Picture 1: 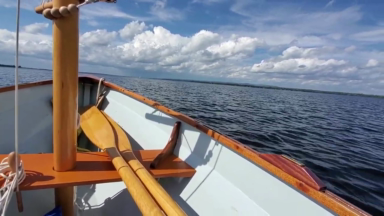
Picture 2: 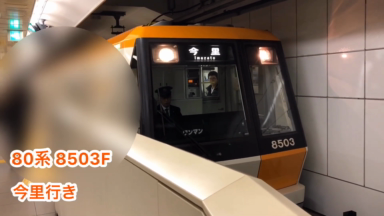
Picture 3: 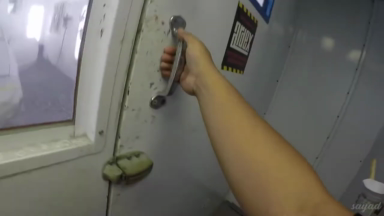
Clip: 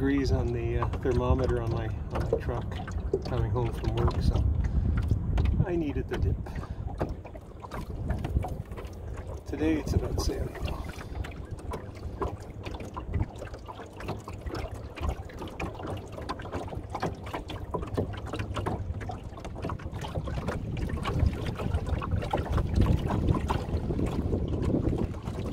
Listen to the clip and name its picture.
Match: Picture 1